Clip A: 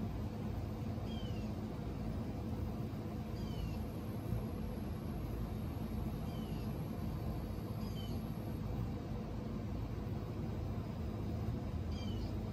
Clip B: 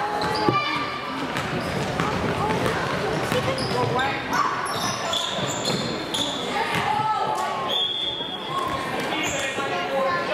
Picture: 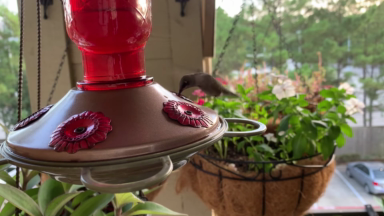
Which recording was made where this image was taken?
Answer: A